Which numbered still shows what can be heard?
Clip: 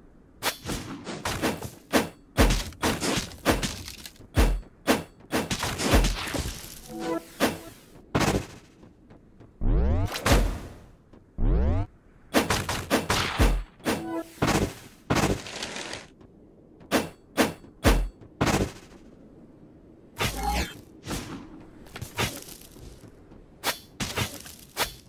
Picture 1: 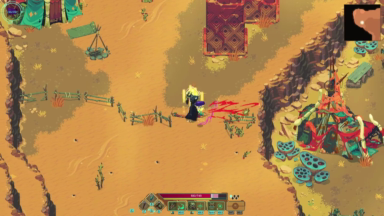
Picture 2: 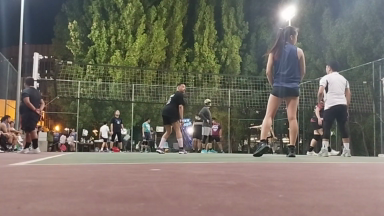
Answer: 1